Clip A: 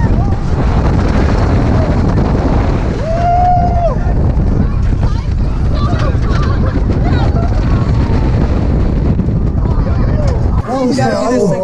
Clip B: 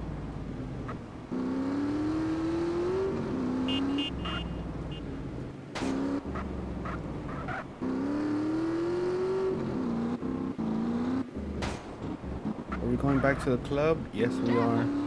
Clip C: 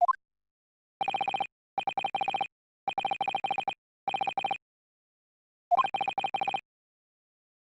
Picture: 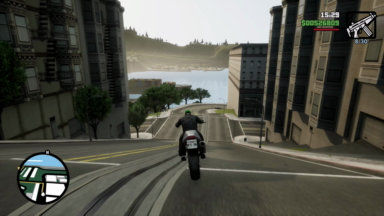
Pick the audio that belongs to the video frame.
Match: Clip B